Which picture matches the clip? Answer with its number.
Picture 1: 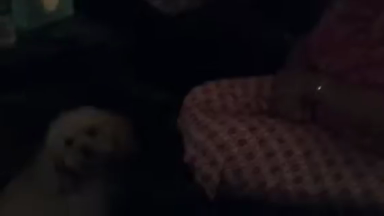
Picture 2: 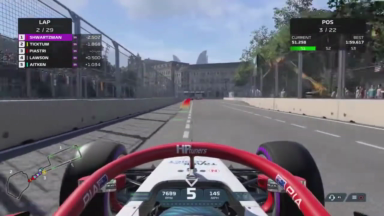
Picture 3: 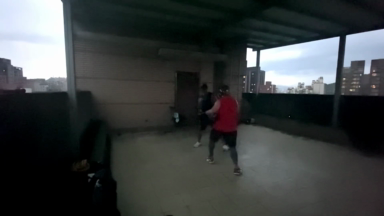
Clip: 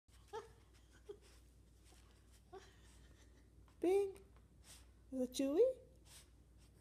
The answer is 1